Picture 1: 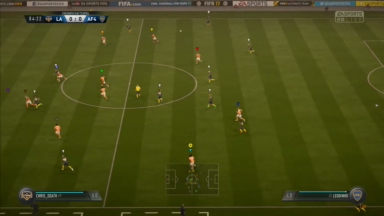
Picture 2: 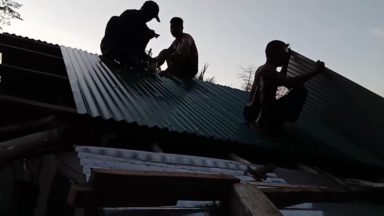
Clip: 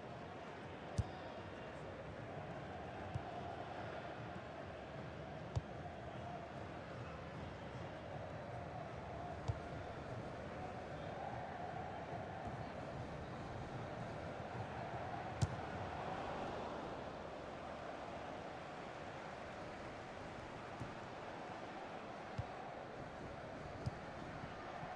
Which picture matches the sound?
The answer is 1